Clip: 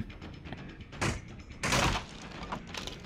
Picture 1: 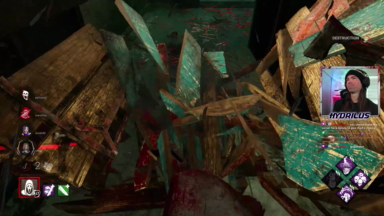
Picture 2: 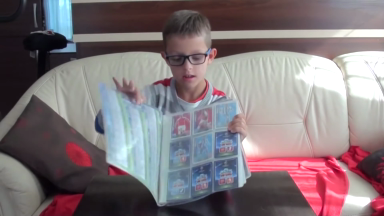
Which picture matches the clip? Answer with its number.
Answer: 1